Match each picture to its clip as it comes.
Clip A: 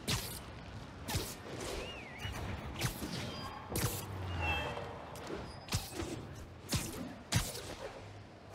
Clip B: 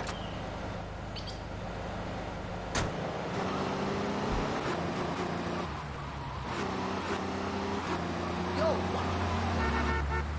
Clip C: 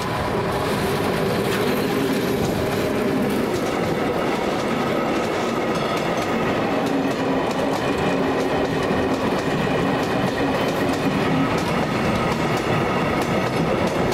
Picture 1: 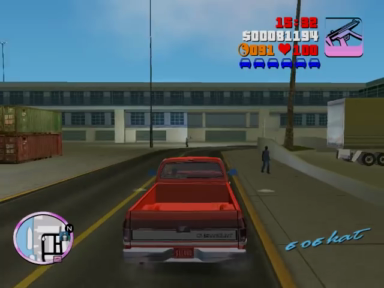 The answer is B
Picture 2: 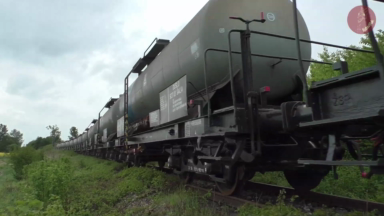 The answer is C